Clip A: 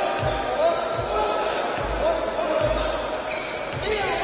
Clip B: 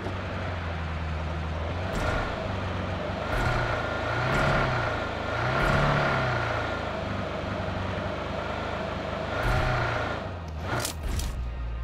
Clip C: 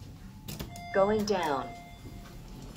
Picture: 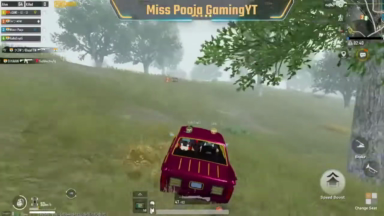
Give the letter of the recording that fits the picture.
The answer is B